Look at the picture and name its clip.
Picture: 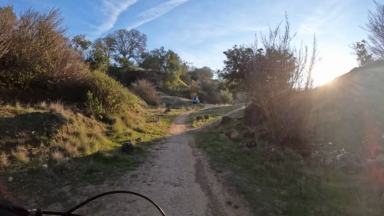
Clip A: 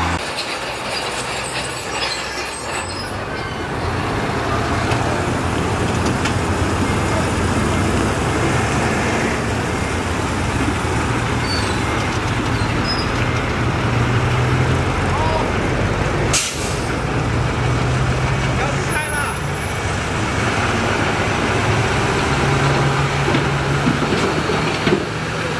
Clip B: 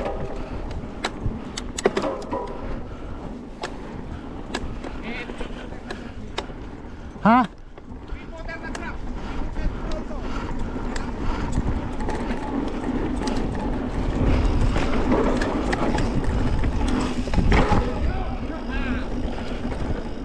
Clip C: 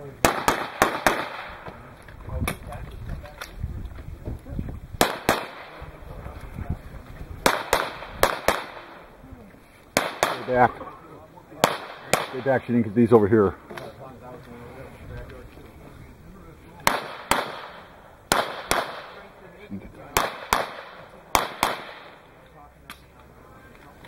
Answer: B